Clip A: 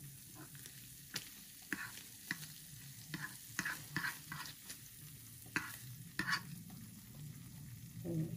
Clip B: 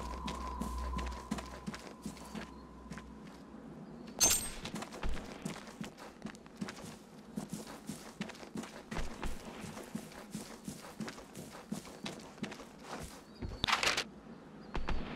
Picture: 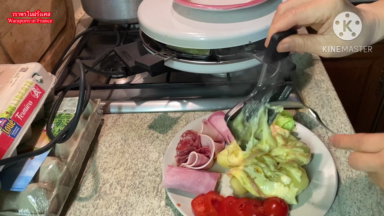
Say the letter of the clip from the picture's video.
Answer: A